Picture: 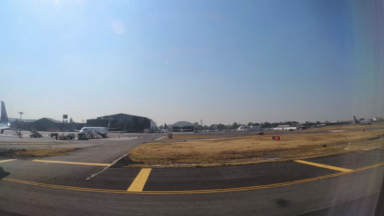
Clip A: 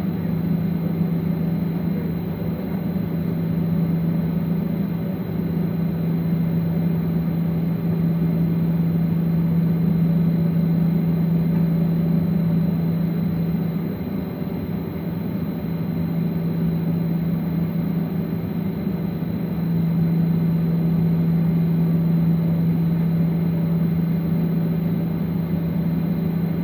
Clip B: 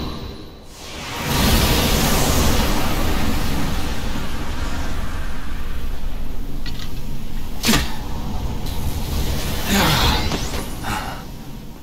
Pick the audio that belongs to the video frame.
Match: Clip A